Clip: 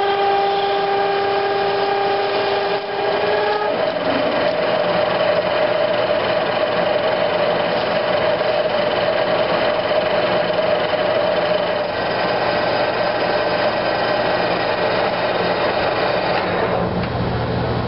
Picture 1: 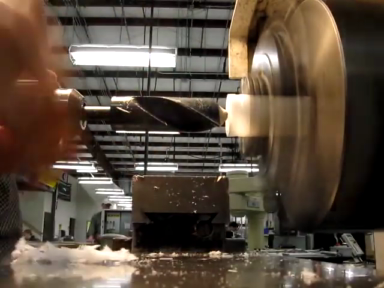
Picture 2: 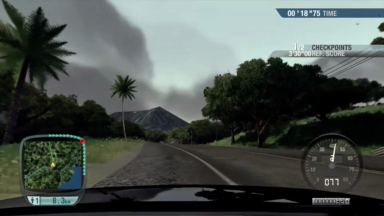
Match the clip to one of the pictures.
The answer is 1